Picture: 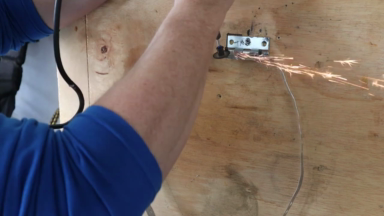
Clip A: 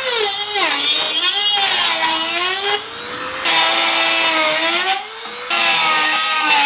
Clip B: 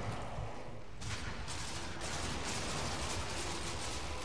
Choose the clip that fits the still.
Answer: A